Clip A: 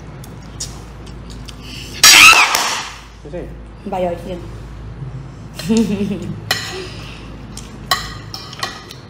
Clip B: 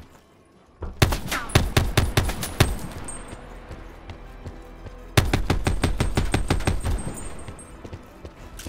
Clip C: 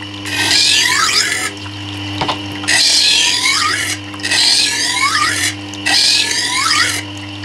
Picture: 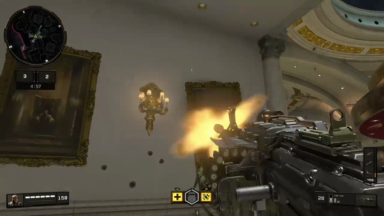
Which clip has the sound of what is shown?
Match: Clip B